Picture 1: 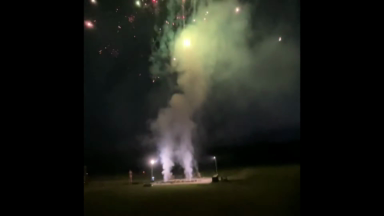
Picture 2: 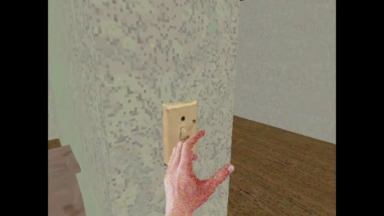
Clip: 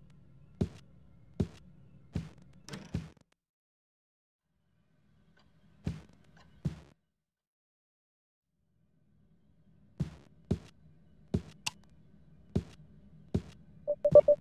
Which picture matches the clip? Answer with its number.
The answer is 2